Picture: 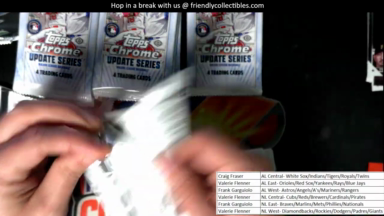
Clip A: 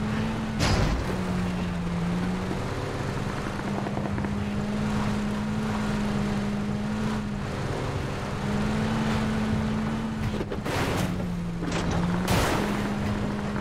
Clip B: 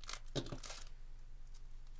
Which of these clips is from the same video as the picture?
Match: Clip B